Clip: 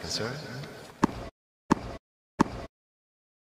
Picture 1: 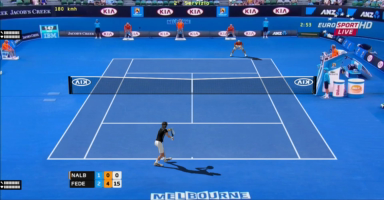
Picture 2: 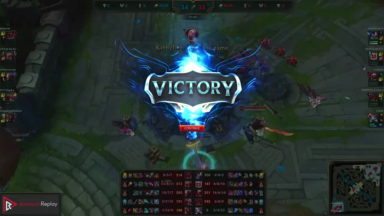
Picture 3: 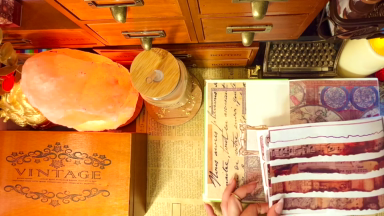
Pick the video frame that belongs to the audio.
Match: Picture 1